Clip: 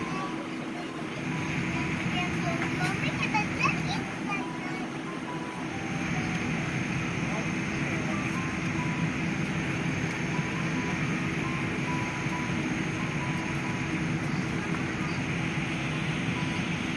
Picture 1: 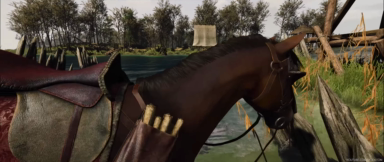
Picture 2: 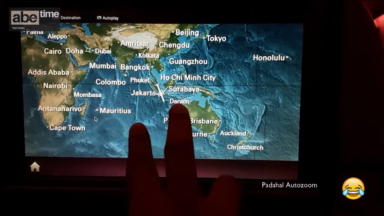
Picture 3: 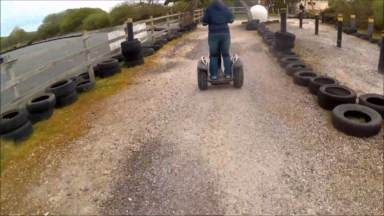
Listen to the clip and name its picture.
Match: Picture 2